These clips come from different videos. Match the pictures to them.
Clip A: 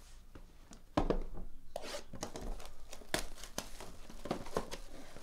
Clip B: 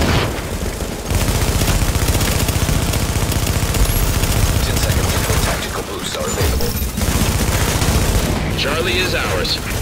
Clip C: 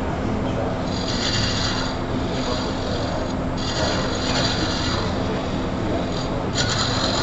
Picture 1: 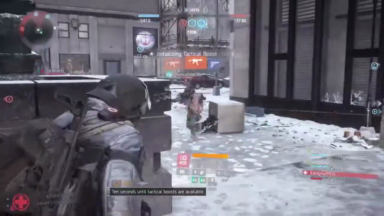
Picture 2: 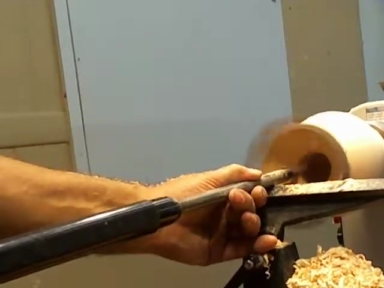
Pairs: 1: B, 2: C